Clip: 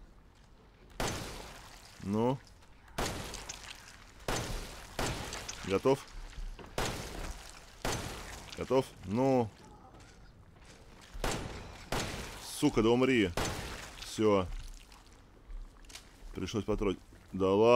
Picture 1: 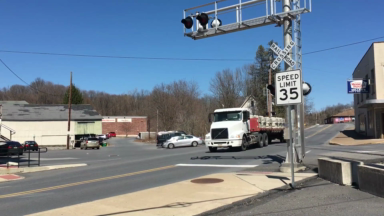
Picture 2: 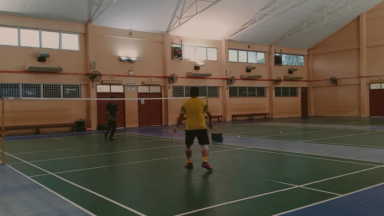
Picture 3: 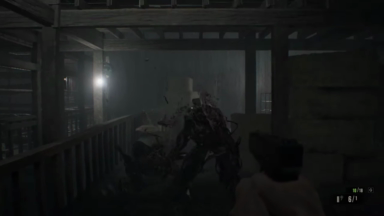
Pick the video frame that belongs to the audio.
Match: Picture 3